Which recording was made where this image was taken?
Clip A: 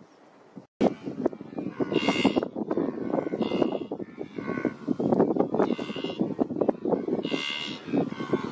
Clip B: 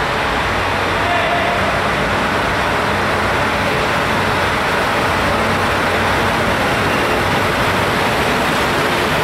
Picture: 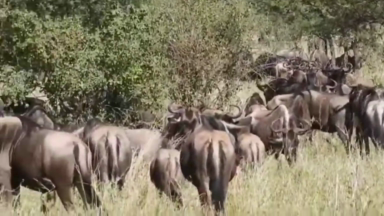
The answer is A